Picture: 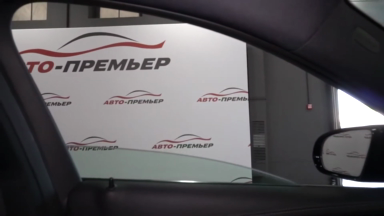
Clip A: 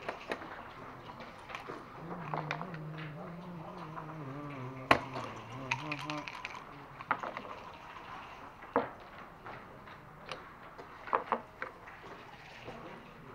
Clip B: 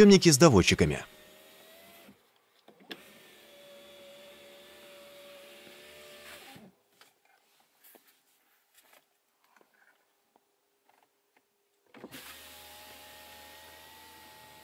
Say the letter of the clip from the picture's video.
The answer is B